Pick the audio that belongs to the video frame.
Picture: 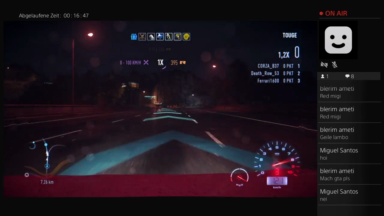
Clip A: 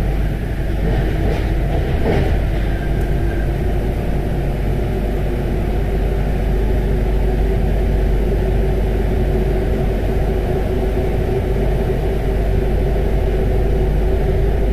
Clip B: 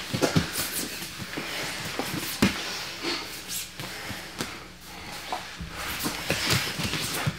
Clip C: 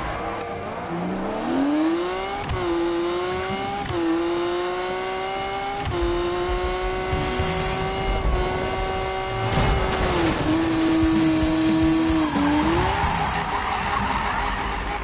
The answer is C